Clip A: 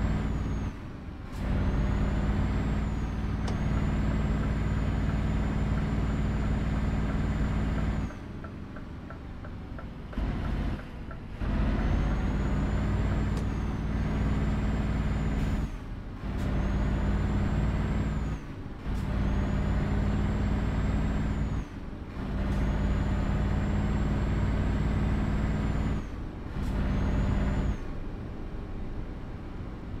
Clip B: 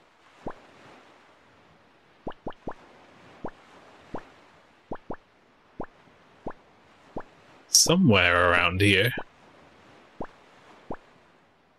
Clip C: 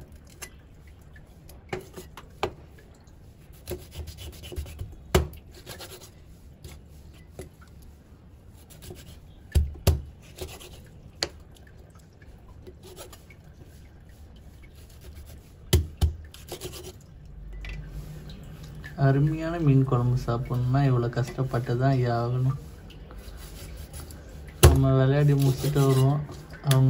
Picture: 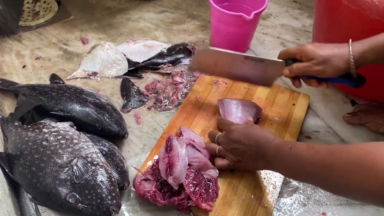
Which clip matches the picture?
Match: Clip C